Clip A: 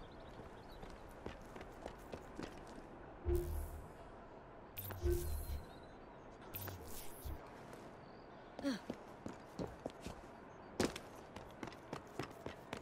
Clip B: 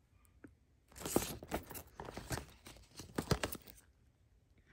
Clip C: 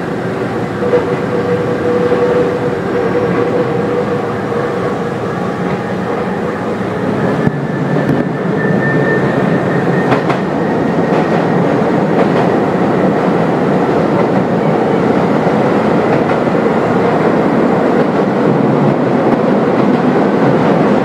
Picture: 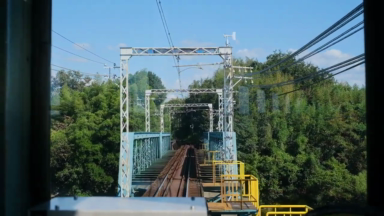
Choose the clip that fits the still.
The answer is C